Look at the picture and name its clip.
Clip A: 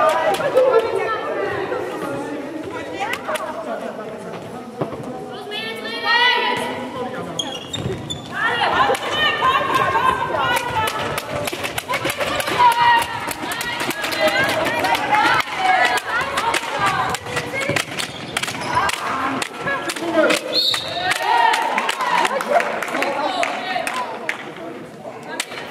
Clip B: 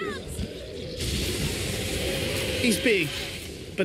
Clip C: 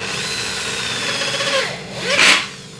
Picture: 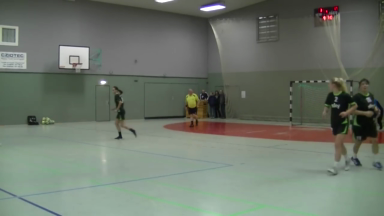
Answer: A